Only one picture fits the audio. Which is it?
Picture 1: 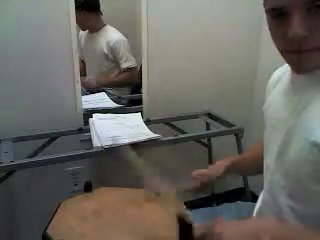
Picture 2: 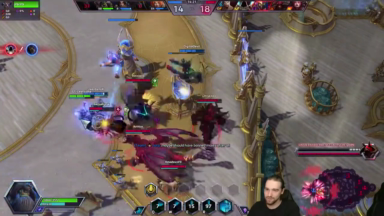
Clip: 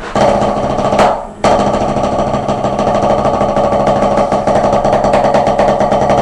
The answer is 1